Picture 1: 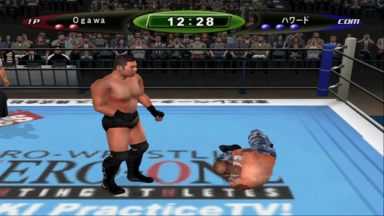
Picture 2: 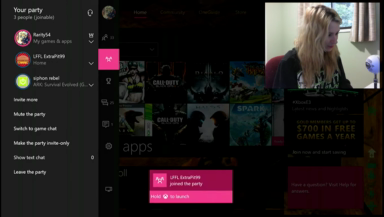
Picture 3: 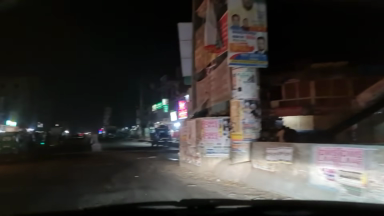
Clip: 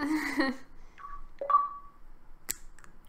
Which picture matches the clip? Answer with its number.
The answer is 2